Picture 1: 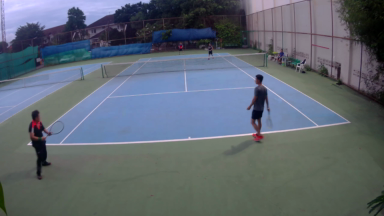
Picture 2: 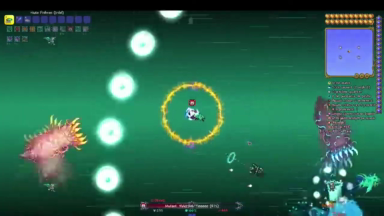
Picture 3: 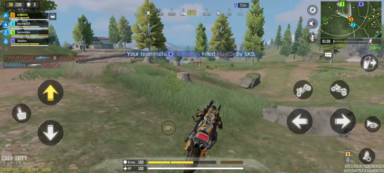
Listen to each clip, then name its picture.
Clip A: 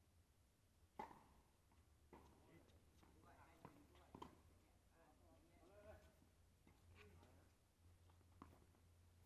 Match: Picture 1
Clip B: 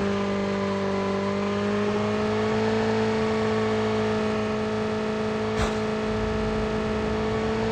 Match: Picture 3